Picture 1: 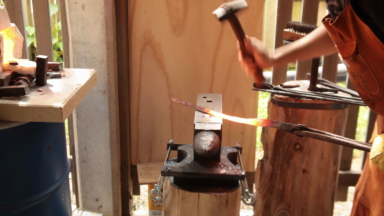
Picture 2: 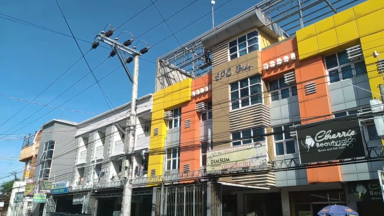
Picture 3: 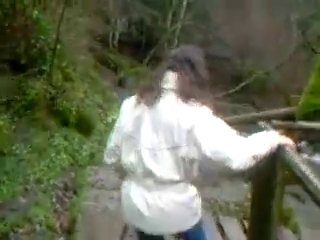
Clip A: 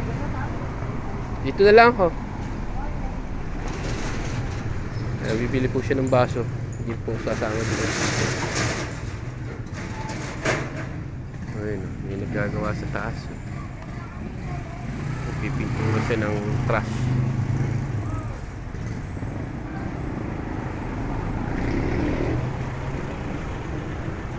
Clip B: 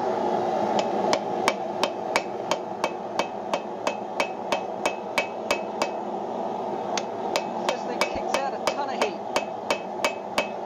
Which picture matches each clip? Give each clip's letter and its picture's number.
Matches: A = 2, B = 1